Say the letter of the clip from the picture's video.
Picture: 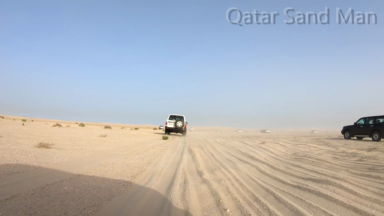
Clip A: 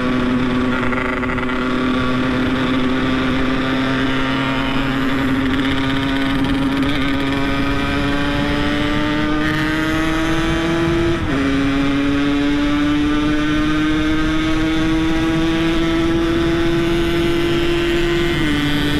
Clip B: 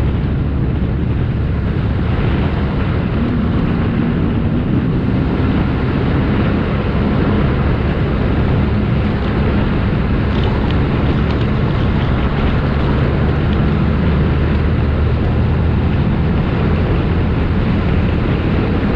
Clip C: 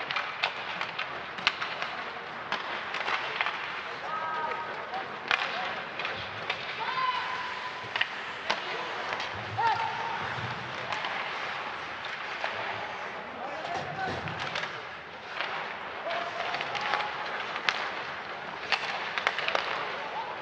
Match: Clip B